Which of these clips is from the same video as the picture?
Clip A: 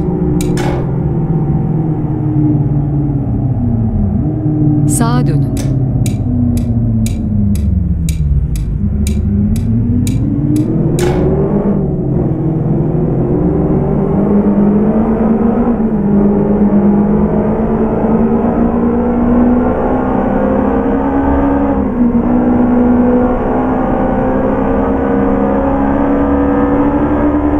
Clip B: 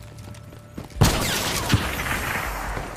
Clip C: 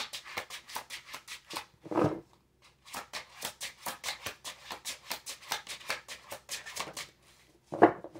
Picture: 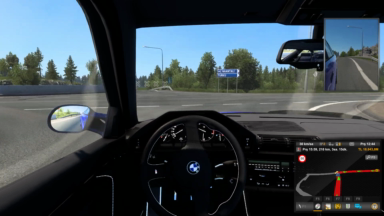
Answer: A